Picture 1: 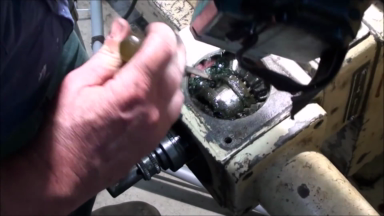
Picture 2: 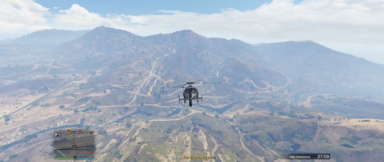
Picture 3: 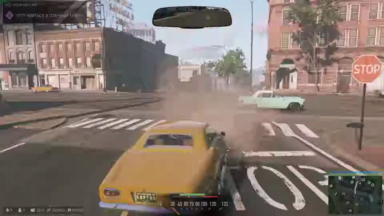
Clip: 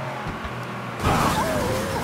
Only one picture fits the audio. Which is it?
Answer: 3